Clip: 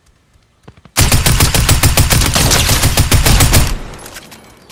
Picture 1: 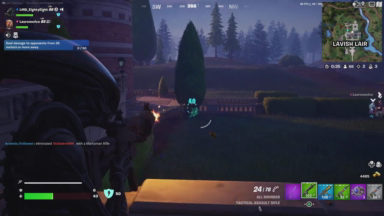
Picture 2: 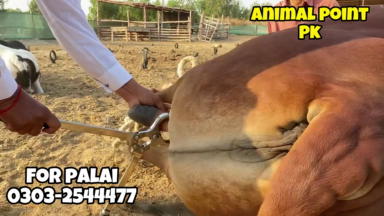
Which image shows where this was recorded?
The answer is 1